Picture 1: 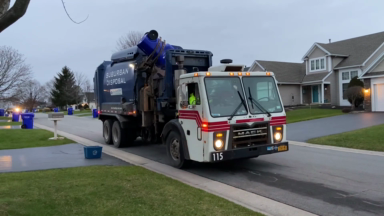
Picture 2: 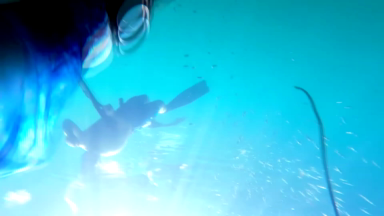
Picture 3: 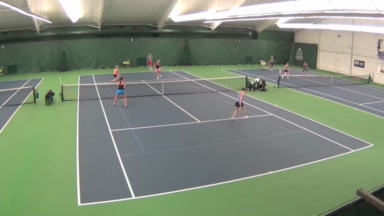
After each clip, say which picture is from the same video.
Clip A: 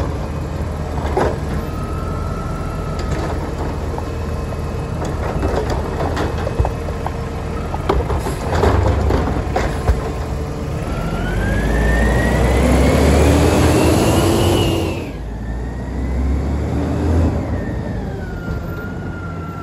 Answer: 1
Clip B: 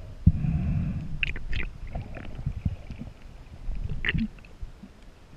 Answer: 2